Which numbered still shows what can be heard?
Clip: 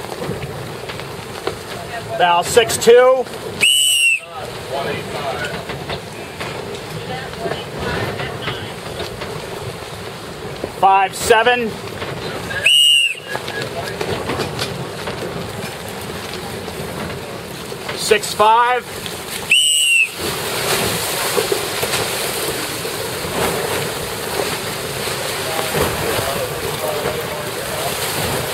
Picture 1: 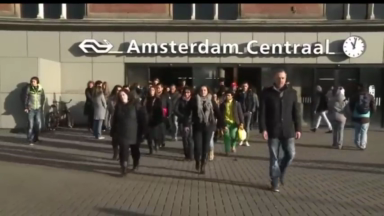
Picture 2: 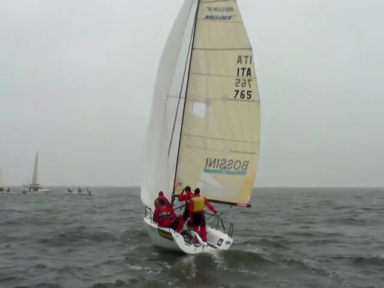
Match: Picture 2